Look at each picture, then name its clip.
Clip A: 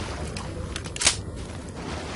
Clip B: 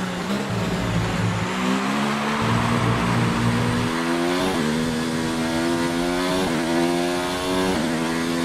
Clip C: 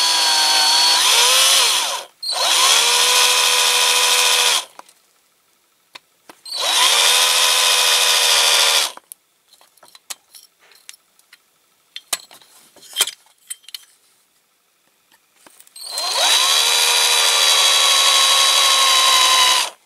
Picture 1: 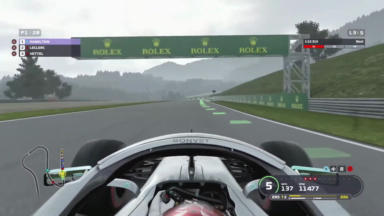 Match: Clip B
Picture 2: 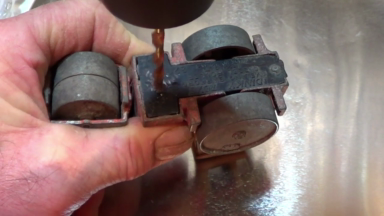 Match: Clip C